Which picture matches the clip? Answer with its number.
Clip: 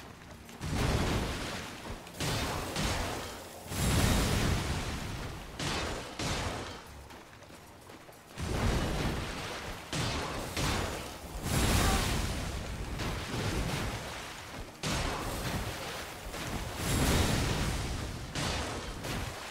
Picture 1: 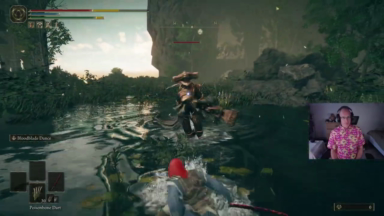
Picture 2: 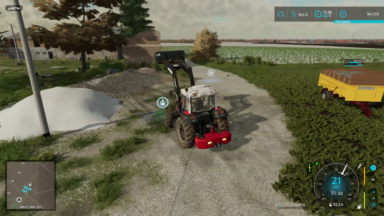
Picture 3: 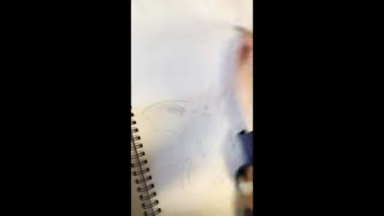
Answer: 1